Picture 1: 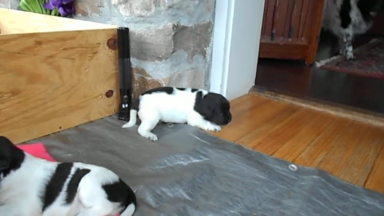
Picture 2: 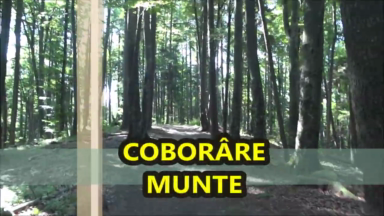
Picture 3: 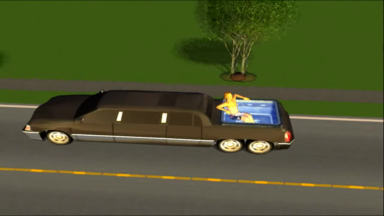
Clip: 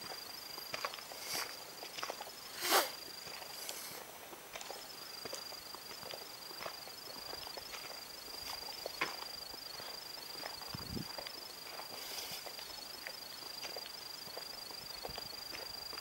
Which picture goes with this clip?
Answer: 2